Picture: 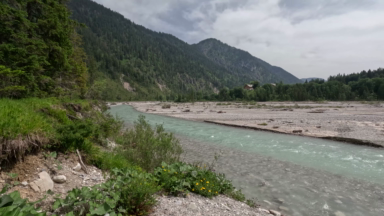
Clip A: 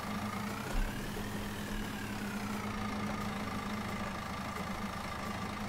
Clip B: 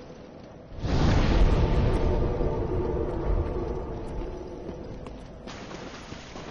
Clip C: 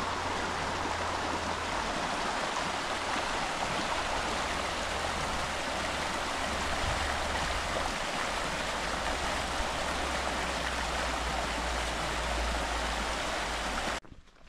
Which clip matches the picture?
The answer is C